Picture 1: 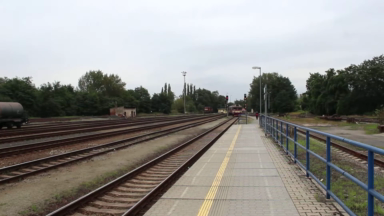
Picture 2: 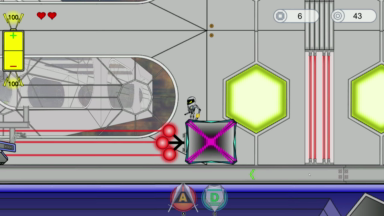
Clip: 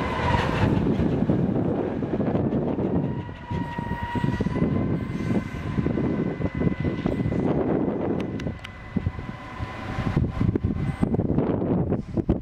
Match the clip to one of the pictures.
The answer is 1